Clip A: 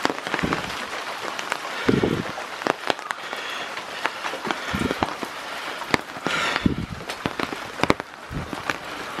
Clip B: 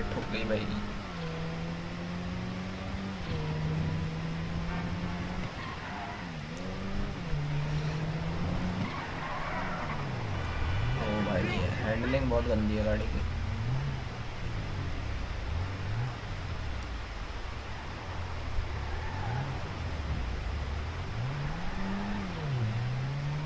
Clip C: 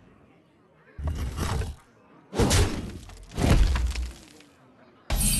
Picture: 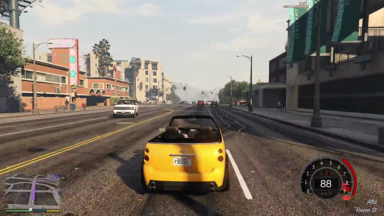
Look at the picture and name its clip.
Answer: B